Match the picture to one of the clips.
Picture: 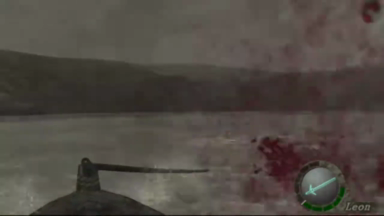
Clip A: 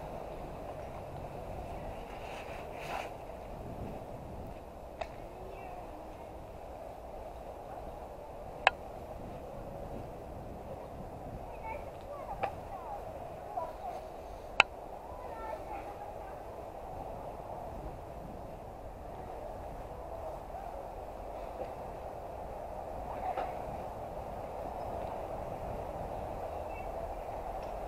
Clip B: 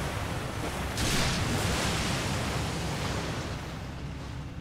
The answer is B